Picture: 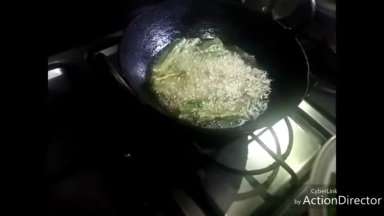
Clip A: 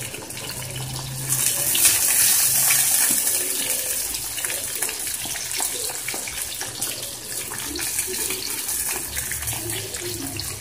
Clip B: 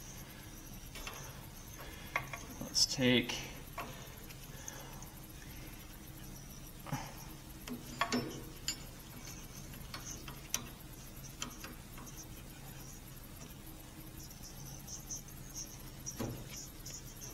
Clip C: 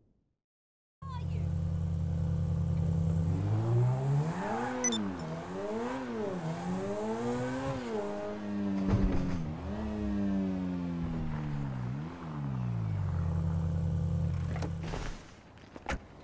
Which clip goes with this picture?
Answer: A